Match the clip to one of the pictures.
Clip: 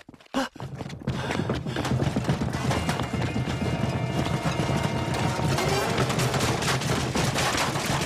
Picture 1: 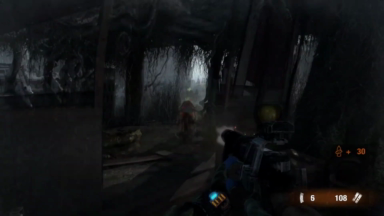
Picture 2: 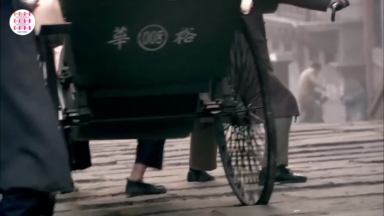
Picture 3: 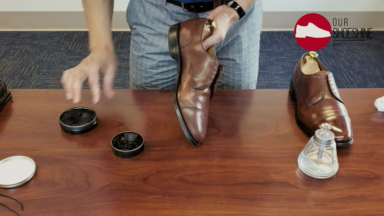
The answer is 2